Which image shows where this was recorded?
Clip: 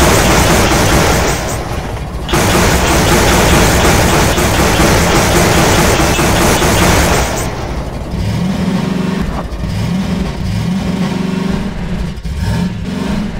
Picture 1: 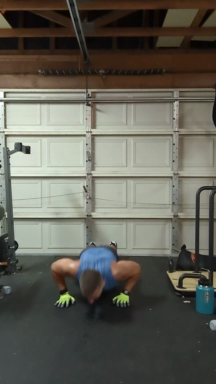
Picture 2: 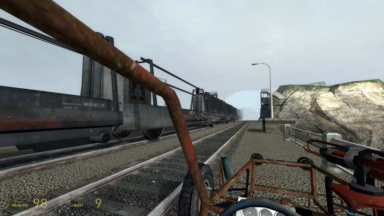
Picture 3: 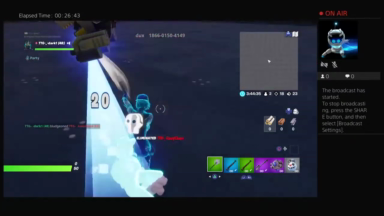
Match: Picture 2